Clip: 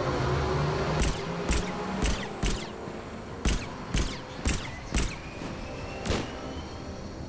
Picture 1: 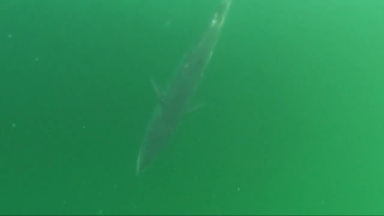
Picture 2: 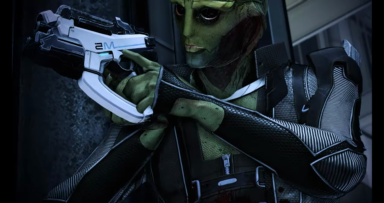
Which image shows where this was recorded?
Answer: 2